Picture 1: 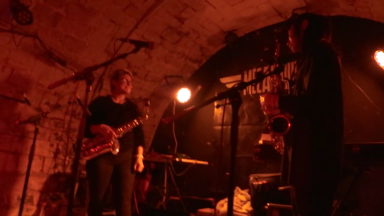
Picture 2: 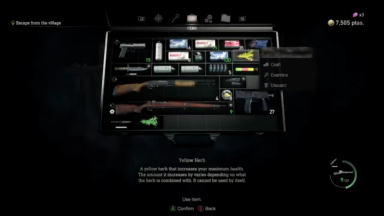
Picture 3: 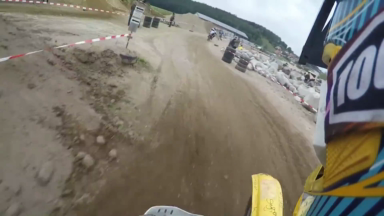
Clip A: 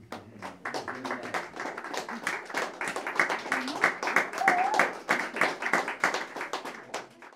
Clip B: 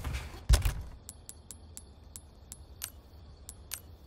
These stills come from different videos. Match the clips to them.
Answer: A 1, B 2